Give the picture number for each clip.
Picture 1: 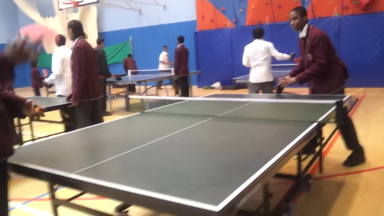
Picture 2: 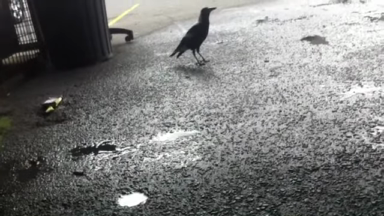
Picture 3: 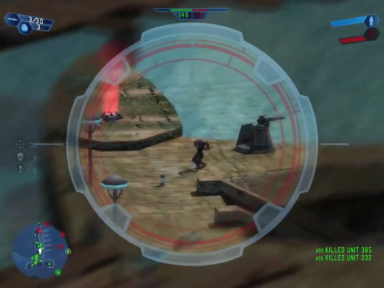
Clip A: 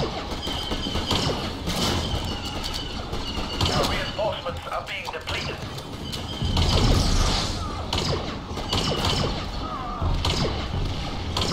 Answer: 3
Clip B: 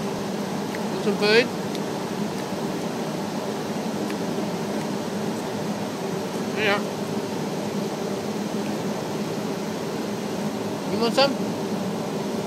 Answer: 2